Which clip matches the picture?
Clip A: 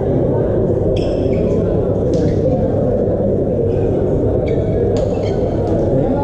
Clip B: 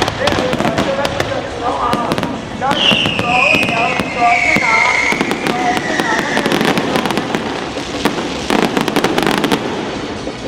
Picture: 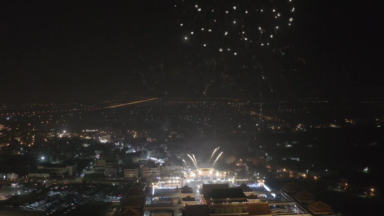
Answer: B